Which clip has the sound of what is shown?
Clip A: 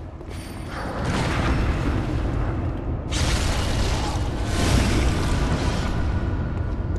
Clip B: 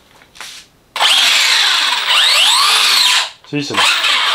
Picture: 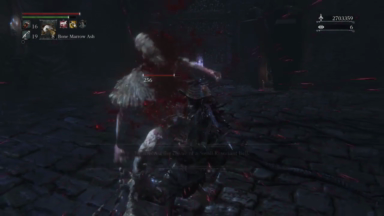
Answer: A